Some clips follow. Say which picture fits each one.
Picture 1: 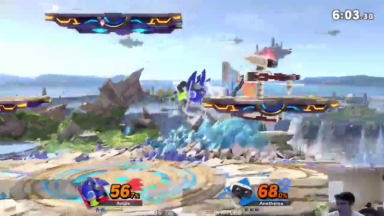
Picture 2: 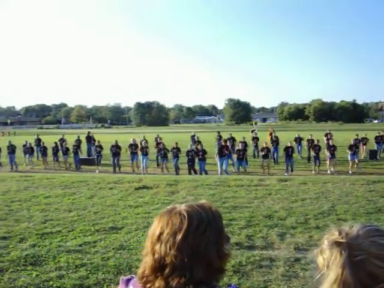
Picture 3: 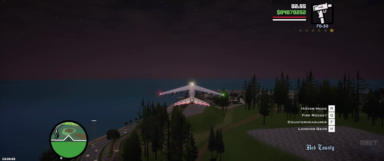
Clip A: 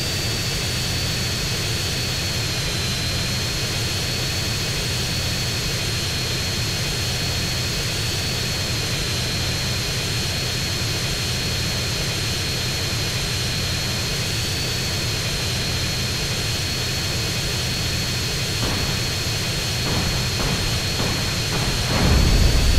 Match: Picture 3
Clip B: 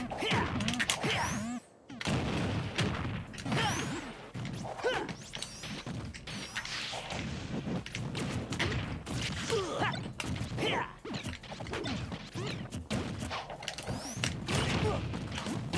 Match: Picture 1